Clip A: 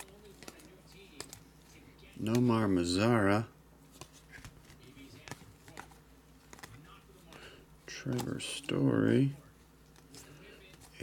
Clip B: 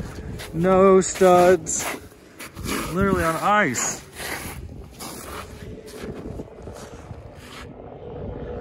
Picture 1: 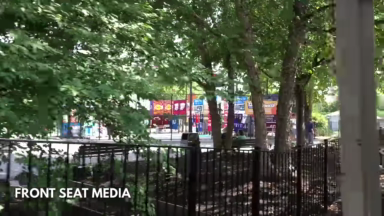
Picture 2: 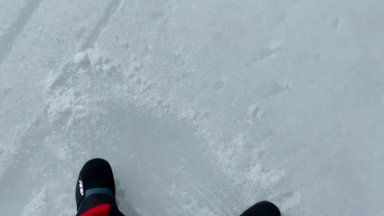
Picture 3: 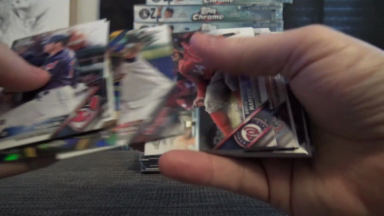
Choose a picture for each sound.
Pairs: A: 3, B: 2